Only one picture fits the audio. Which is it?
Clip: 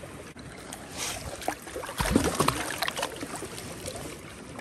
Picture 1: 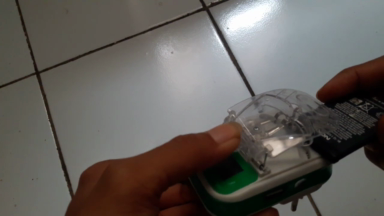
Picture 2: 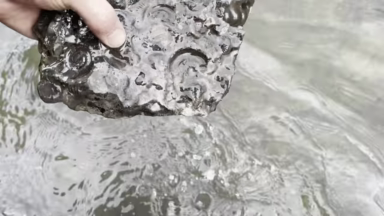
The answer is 2